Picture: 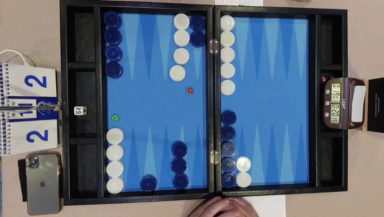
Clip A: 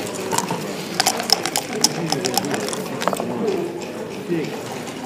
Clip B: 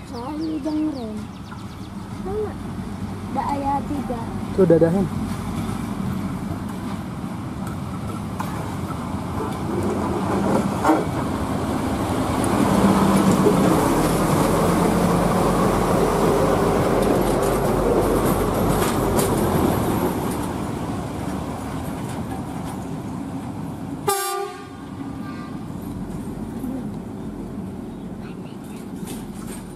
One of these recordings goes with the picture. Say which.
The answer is A